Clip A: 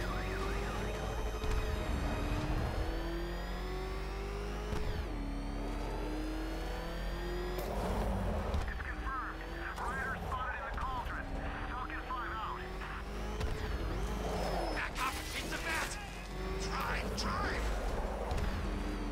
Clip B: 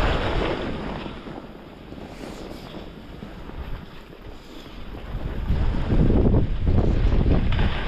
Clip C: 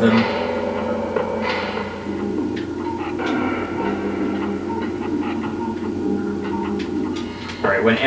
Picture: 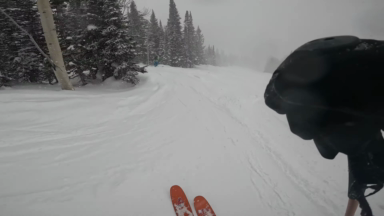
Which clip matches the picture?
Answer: B